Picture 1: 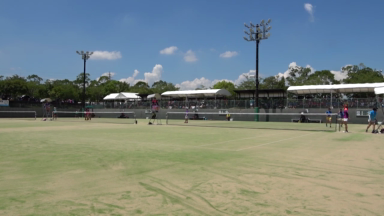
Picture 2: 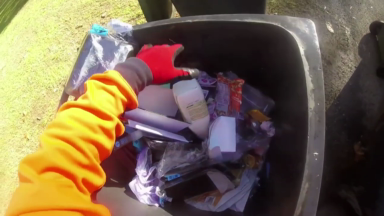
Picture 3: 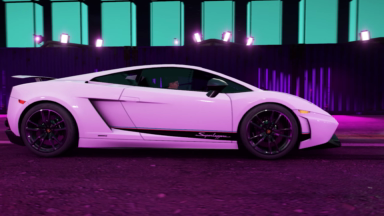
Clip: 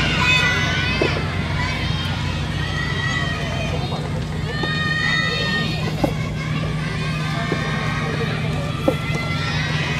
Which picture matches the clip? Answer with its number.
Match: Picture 1